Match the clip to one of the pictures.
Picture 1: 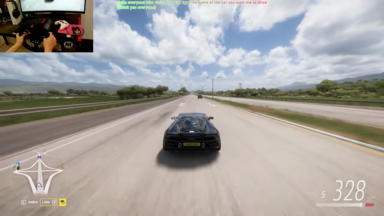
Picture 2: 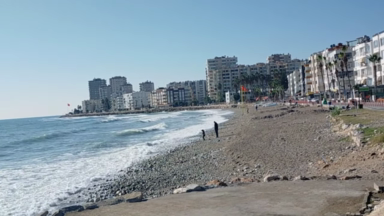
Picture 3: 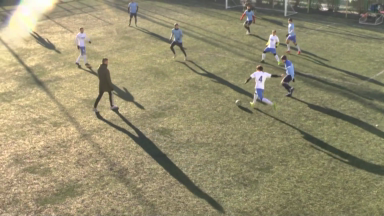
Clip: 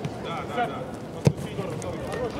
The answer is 3